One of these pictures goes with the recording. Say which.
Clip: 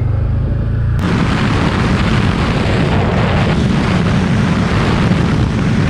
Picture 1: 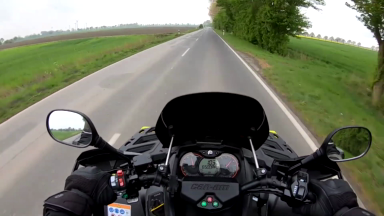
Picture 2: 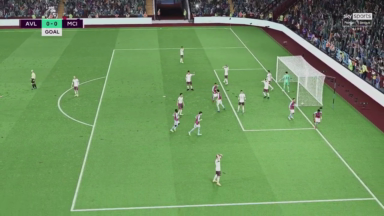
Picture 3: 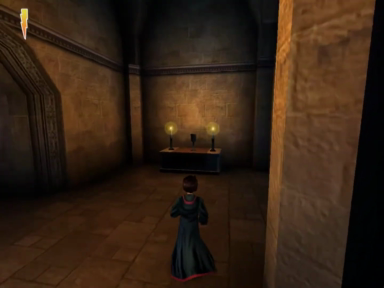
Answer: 1